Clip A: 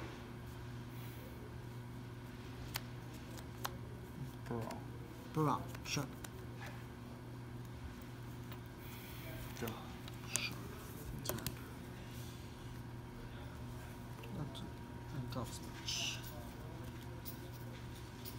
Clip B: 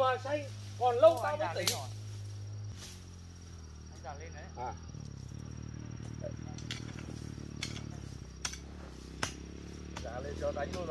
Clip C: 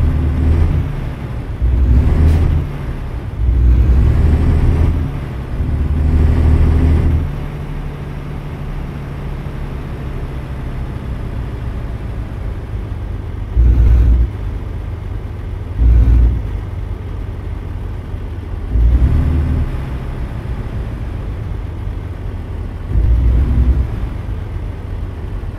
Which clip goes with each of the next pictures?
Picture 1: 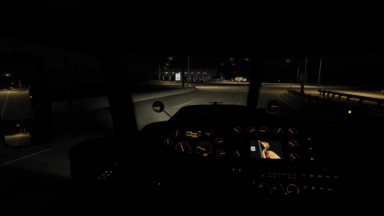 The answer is C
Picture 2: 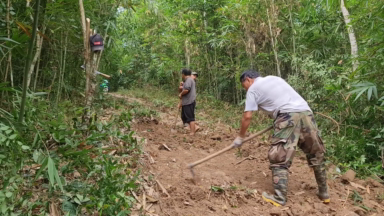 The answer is B